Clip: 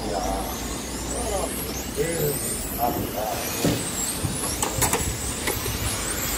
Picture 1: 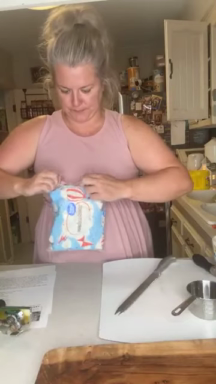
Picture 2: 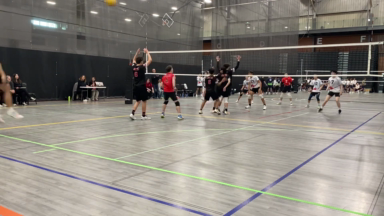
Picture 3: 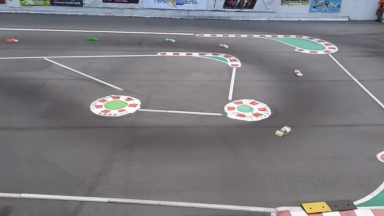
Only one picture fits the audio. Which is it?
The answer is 3